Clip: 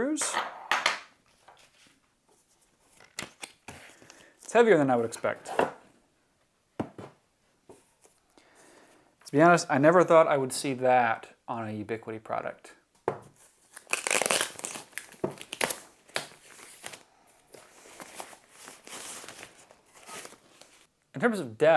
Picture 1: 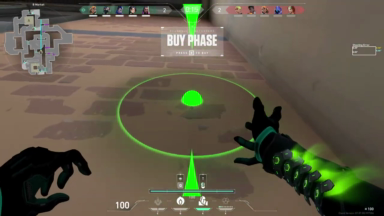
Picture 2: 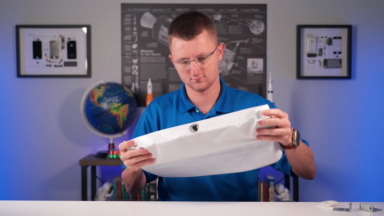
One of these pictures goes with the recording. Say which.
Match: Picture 2